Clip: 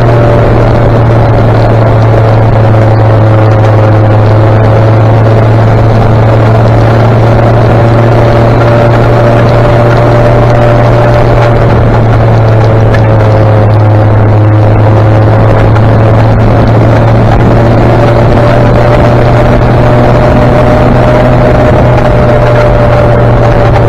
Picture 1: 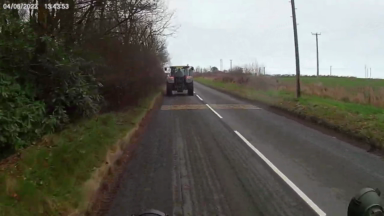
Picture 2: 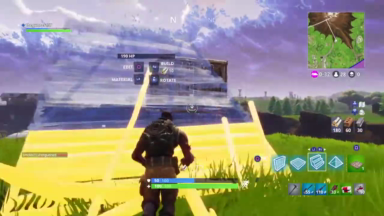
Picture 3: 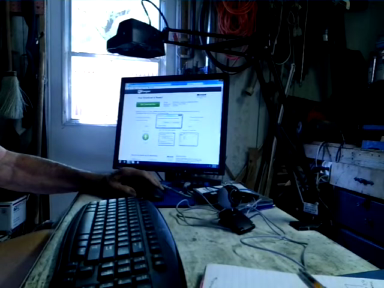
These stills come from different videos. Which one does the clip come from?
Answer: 1